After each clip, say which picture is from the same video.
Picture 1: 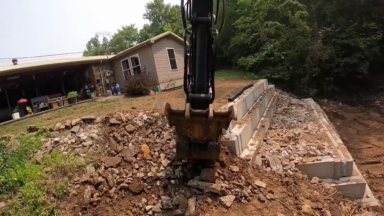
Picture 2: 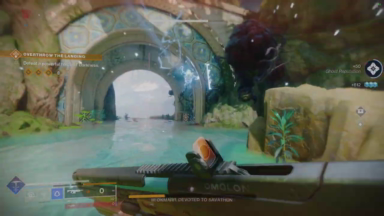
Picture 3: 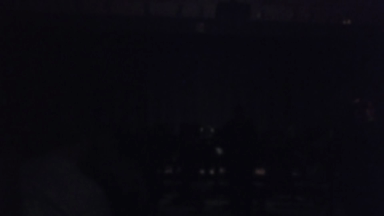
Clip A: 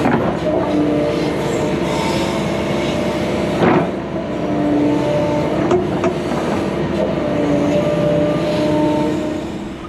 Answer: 1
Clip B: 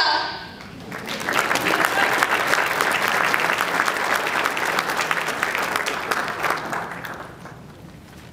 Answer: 3